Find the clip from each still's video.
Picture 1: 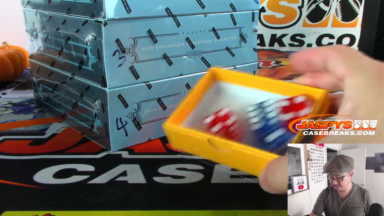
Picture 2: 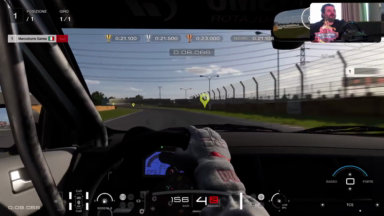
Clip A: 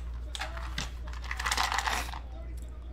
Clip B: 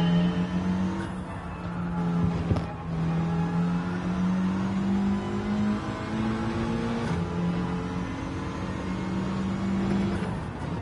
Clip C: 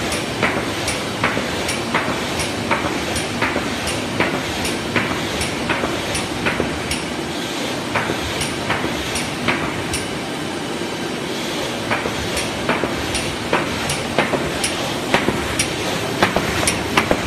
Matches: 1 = A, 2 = B